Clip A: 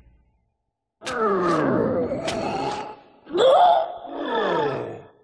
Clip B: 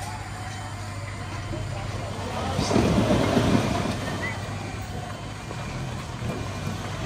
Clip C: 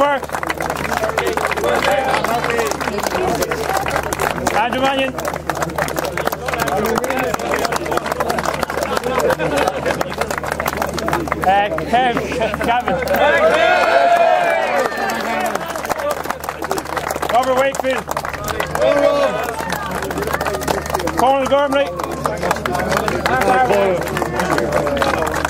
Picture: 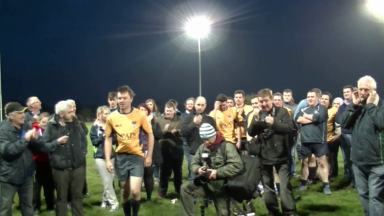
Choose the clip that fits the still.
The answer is C